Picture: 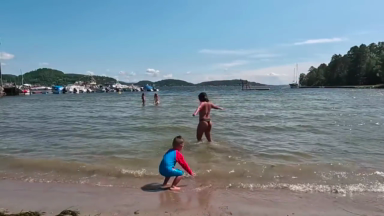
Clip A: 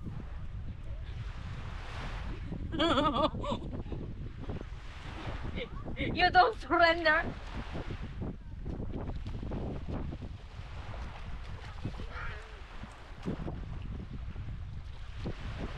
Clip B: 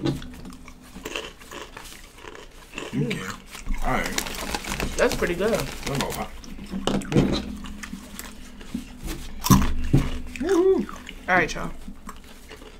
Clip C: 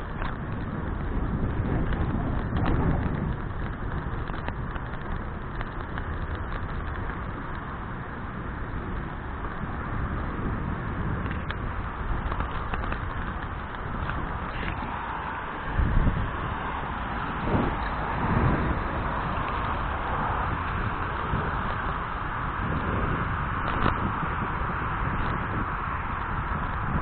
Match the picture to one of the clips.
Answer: A